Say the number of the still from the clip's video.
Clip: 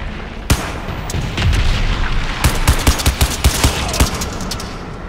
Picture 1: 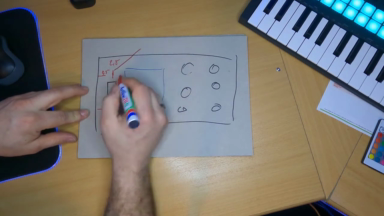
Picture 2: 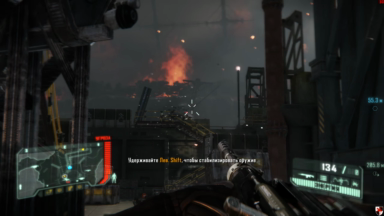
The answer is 2